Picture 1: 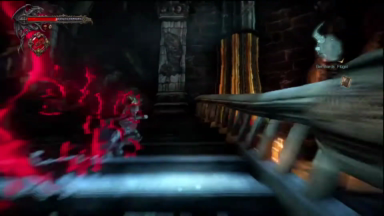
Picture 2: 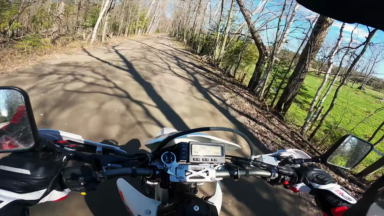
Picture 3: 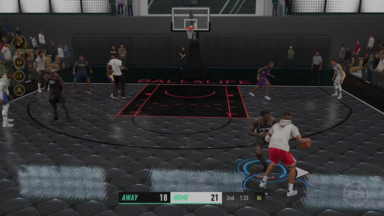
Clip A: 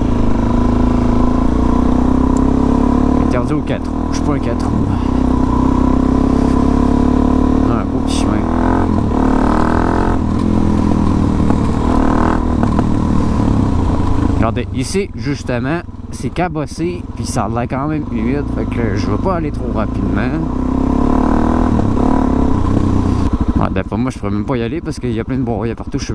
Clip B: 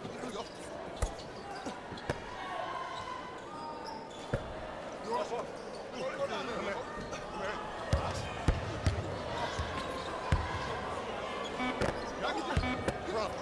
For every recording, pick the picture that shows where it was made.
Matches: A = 2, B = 3